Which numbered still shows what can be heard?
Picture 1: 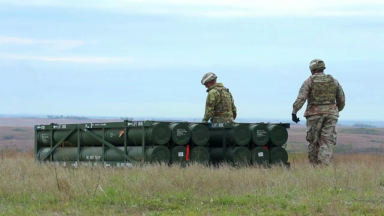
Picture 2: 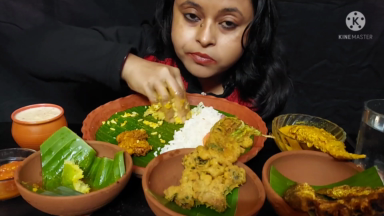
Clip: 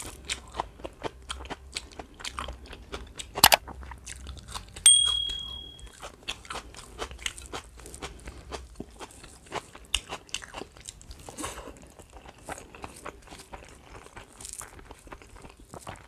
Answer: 2